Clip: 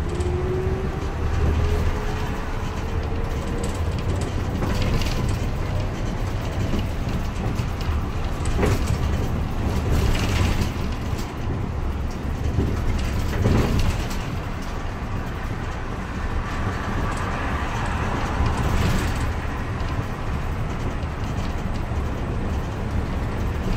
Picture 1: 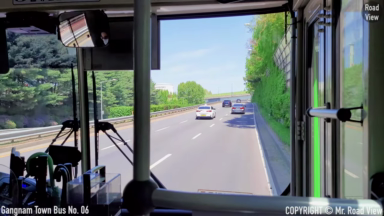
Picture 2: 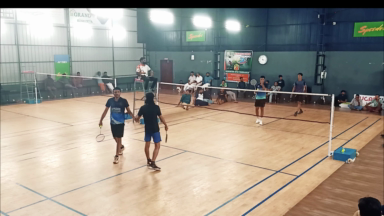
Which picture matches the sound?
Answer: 1